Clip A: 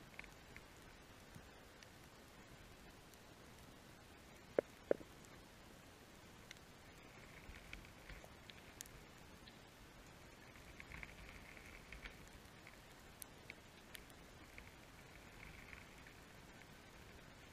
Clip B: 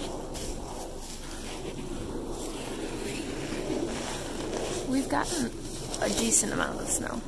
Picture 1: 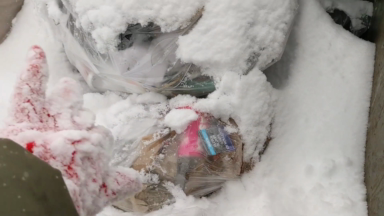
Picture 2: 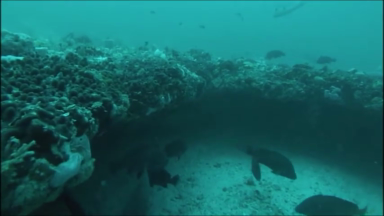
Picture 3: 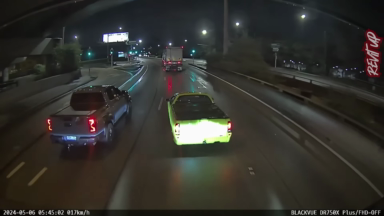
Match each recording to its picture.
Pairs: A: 2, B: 1